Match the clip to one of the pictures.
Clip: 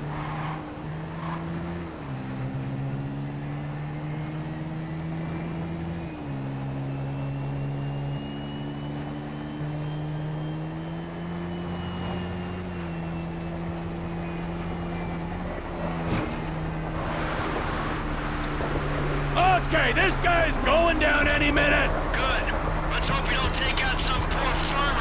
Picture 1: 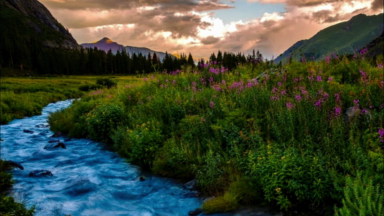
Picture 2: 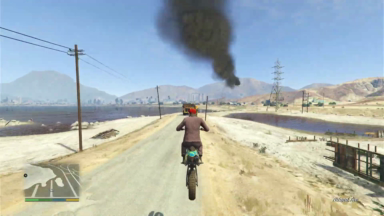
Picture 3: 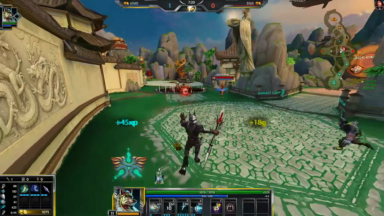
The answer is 2